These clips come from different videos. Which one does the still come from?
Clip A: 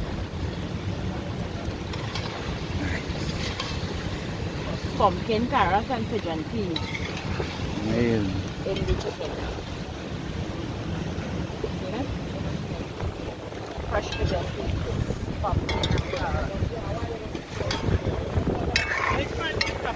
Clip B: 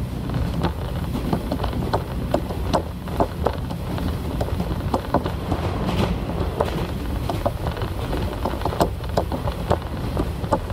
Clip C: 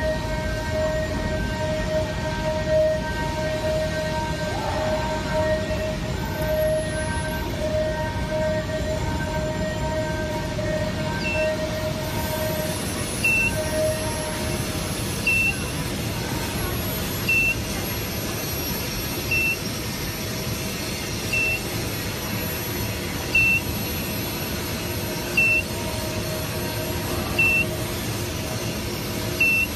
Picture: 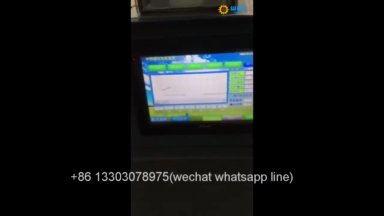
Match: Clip C